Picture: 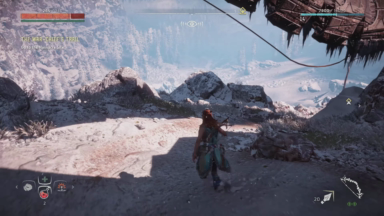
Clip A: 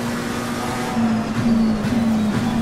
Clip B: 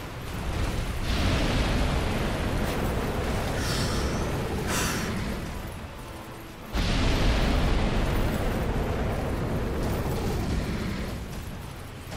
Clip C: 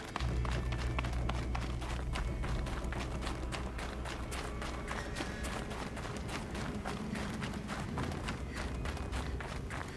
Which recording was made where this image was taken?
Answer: C